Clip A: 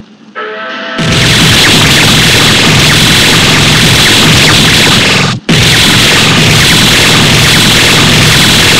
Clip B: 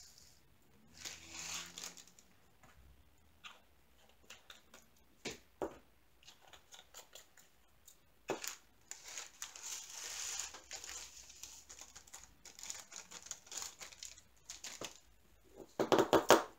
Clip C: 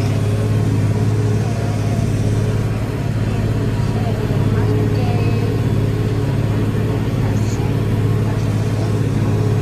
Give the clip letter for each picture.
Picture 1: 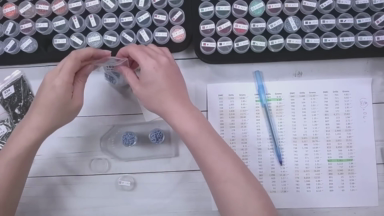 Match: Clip B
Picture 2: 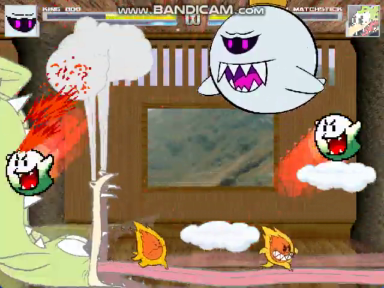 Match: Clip A